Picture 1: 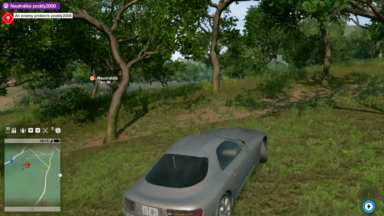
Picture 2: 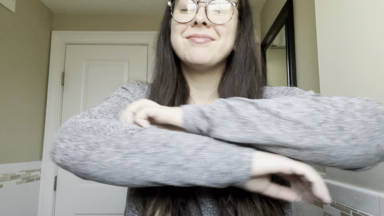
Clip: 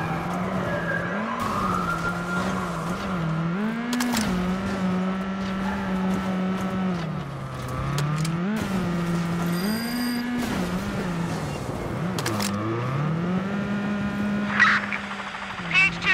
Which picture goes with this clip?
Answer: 1